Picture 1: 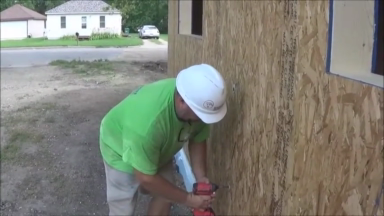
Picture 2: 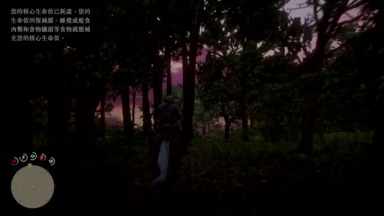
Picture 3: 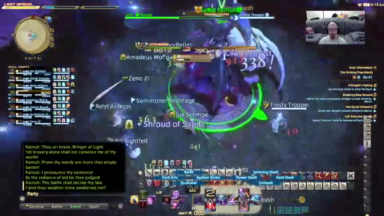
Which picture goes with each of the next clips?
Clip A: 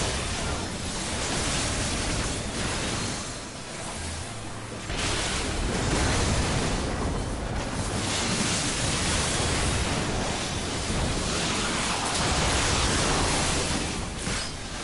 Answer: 3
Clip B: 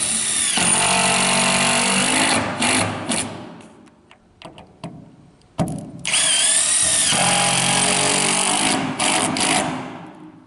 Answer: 1